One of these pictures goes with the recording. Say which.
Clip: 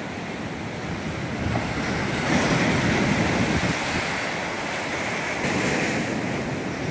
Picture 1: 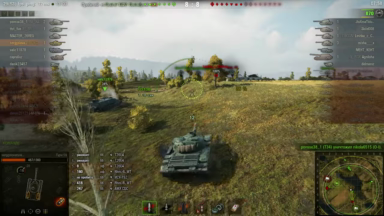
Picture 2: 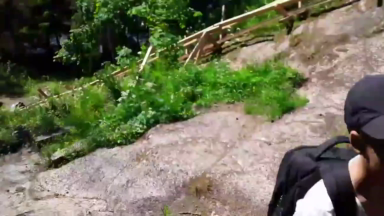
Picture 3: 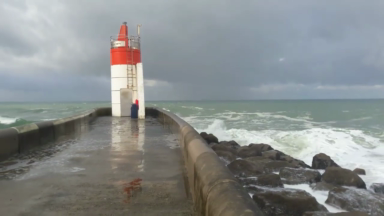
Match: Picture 3